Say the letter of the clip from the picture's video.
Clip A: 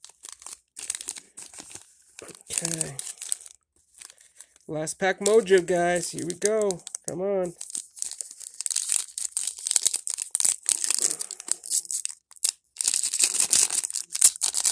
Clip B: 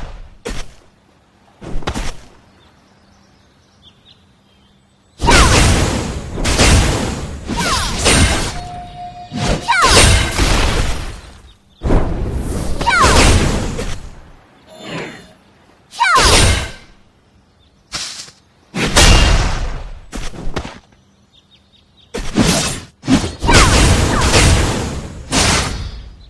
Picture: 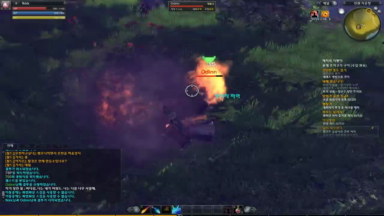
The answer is B